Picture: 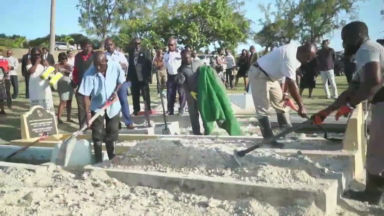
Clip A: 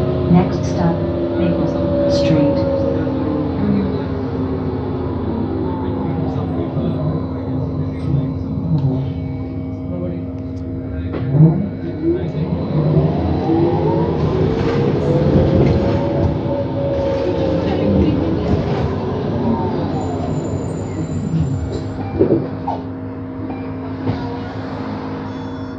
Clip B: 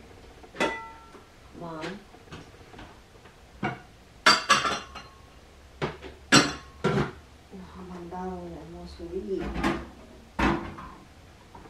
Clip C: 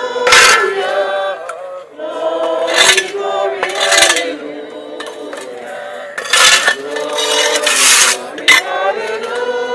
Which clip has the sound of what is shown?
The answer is C